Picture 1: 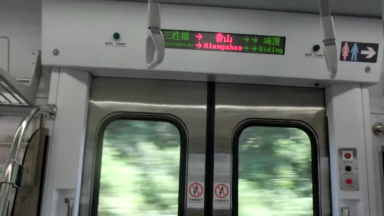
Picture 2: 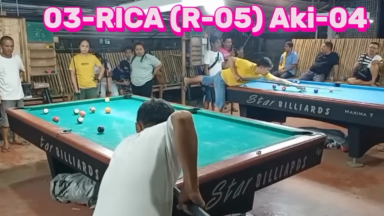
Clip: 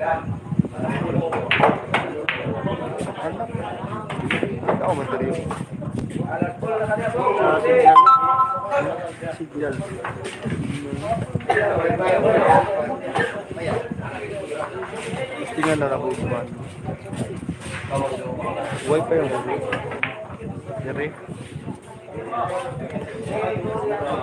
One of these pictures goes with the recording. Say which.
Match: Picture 2